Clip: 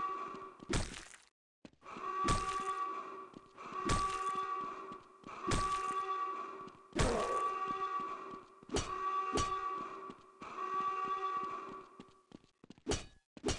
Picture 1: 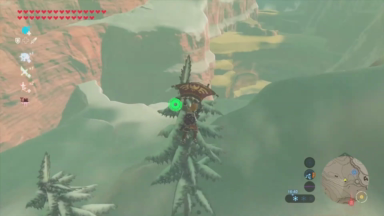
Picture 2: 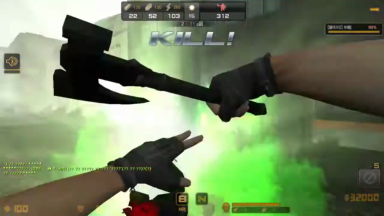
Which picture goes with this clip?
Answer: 2